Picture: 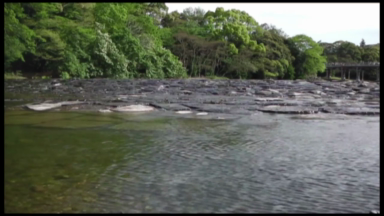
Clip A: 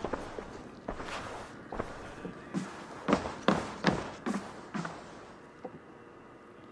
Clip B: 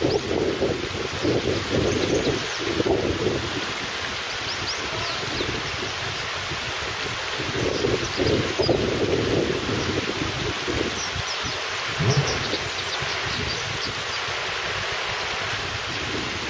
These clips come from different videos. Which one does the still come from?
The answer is B